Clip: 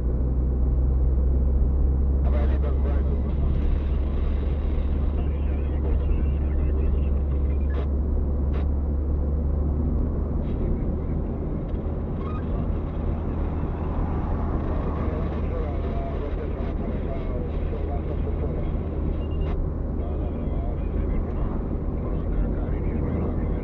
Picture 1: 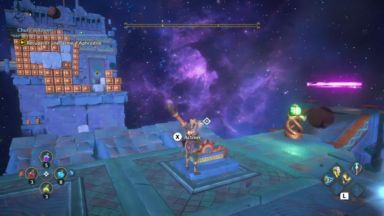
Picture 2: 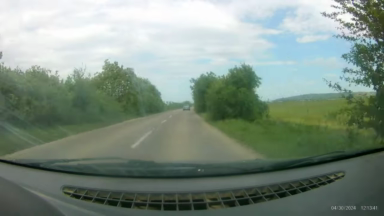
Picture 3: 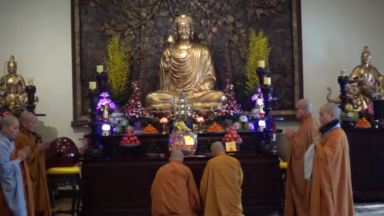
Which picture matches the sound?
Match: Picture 2